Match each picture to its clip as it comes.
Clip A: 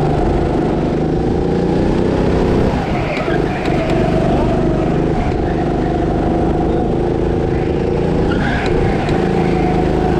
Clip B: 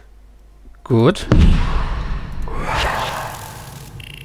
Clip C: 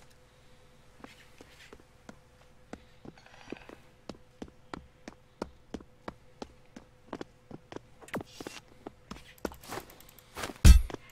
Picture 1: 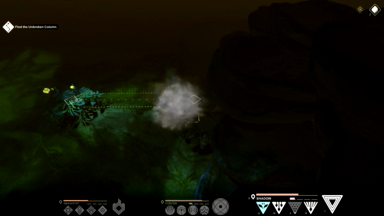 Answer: B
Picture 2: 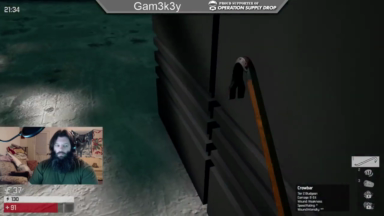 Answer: C